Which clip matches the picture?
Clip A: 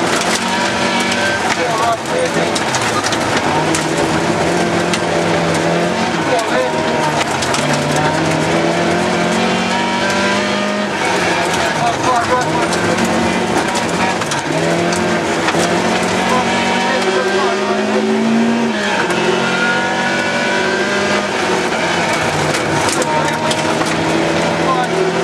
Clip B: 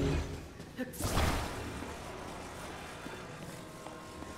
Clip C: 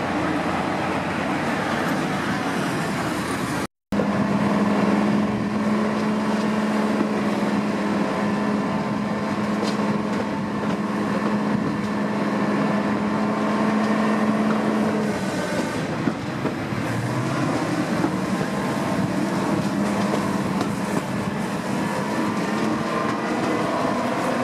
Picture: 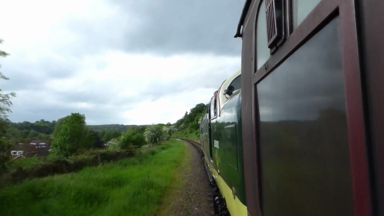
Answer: C